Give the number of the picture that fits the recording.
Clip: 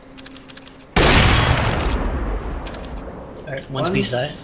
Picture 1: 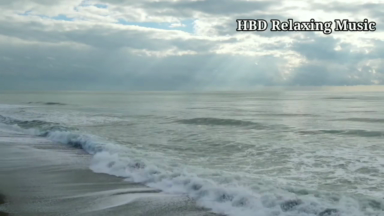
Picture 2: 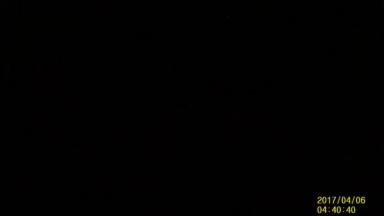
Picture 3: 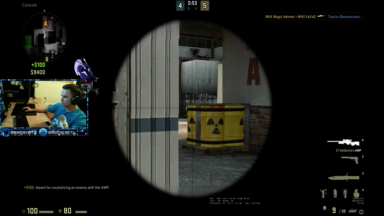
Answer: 3